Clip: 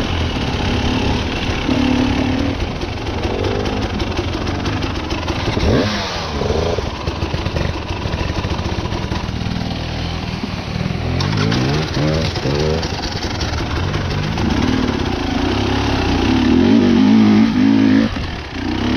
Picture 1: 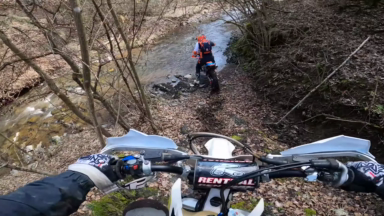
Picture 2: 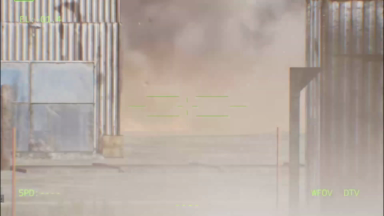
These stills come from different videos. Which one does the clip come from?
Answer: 1